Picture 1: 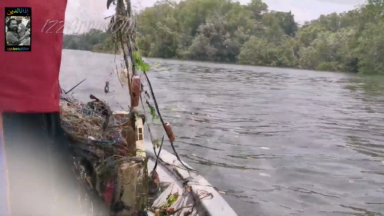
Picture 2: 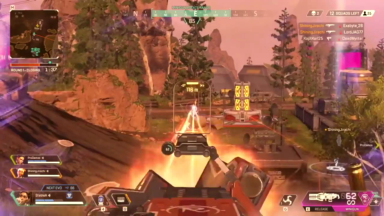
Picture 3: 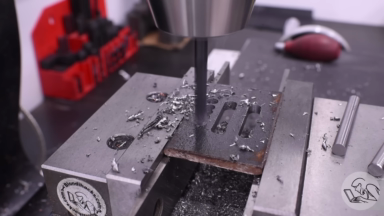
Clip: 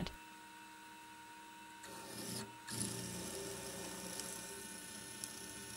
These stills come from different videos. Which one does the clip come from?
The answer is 3